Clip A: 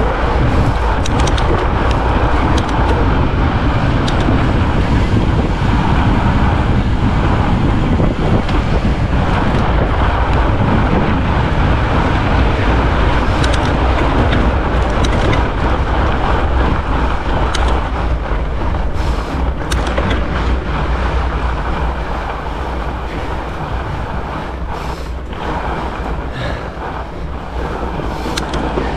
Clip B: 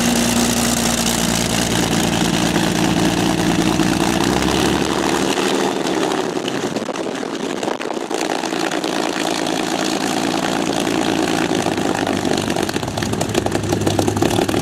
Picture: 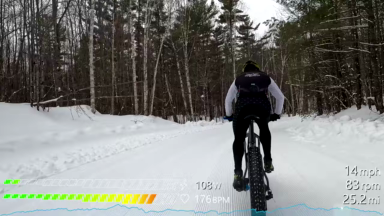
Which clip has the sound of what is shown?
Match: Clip A